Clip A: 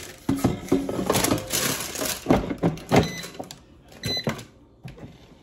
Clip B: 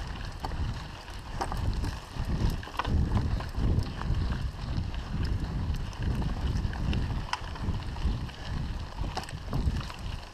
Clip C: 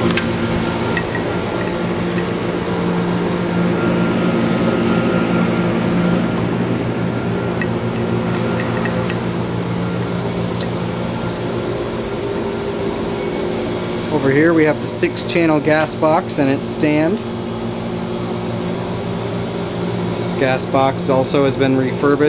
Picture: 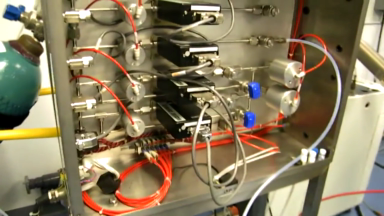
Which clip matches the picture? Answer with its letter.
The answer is C